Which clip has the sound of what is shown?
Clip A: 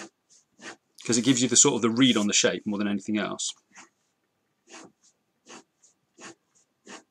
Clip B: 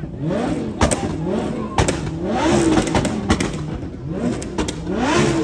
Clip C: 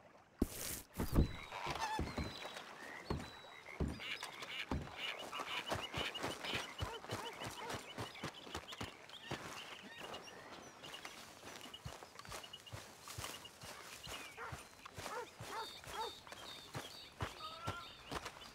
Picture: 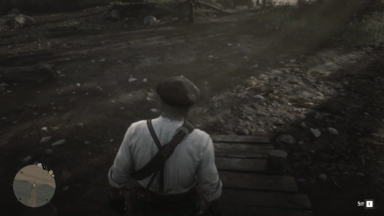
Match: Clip C